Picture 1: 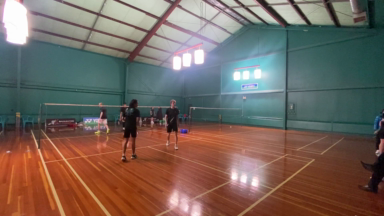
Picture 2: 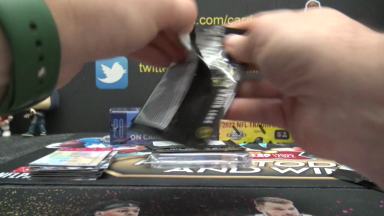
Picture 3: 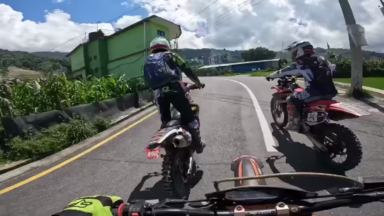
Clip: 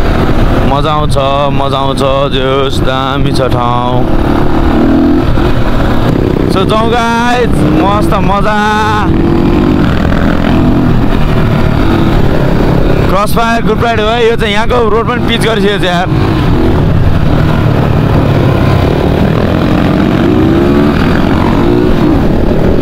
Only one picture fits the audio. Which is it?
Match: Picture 3